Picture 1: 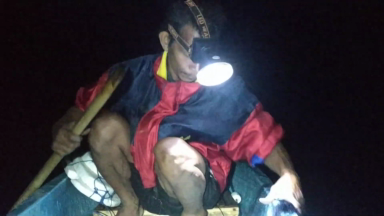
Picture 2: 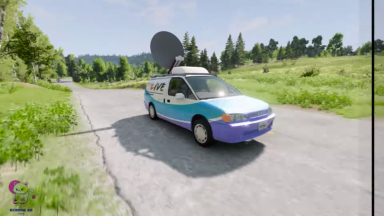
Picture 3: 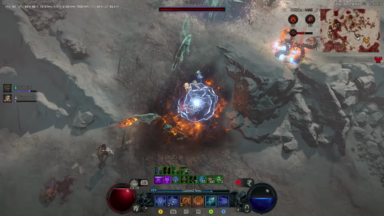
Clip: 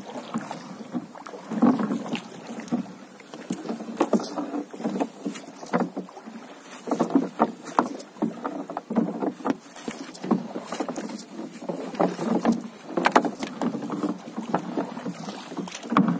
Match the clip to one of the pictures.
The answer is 1